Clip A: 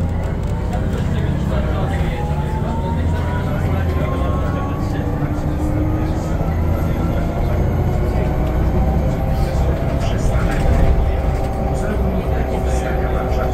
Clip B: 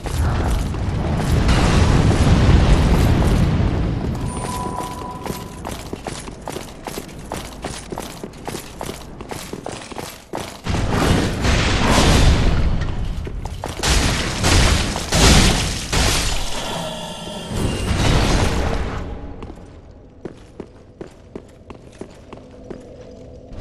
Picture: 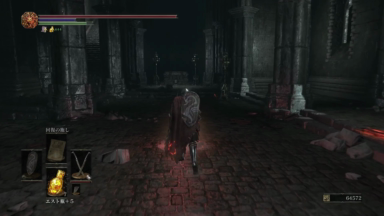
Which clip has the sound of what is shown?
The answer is B